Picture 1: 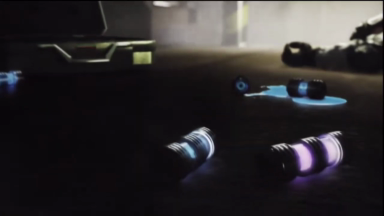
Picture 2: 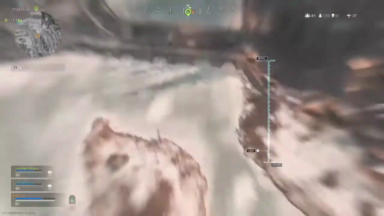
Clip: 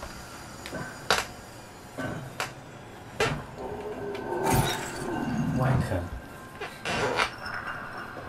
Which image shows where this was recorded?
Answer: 1